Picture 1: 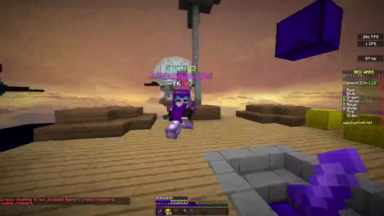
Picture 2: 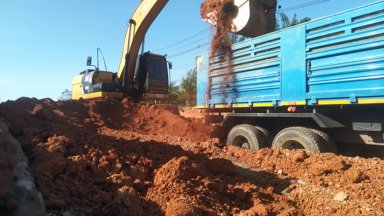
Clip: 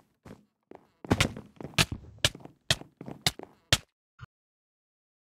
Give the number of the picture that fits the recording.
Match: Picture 1